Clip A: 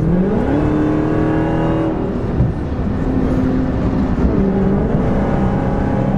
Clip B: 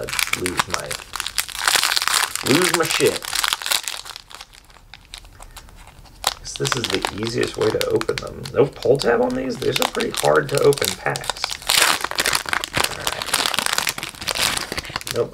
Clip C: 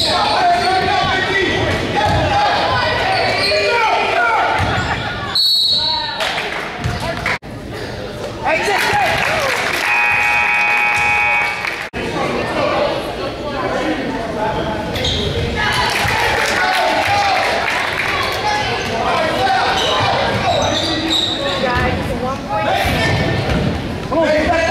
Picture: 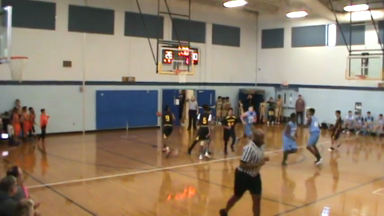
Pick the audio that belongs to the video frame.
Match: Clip C